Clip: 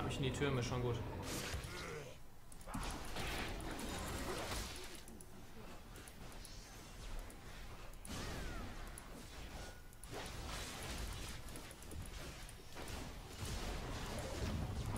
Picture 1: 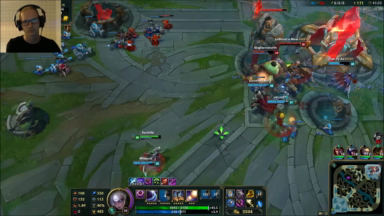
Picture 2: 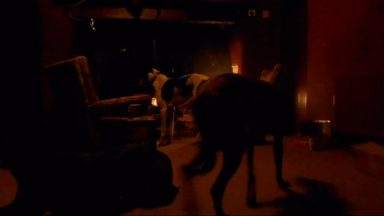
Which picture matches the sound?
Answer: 1